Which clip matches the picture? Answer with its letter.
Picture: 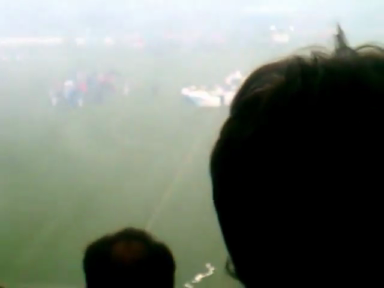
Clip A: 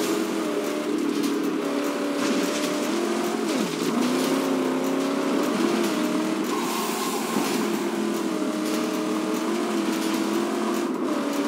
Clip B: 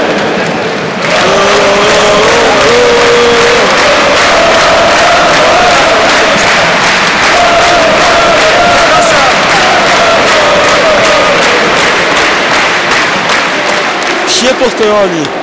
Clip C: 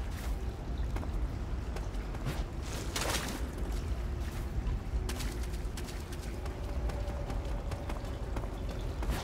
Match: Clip B